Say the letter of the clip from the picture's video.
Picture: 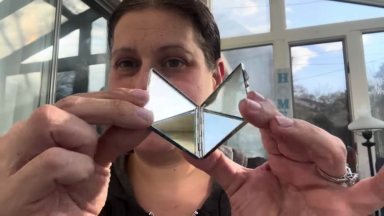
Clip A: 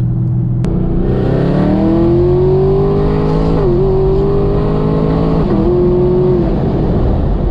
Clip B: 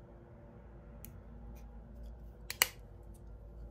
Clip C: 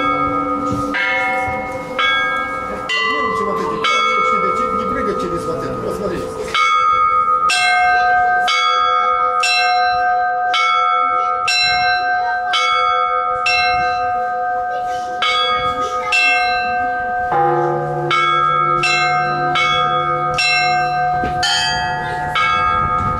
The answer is B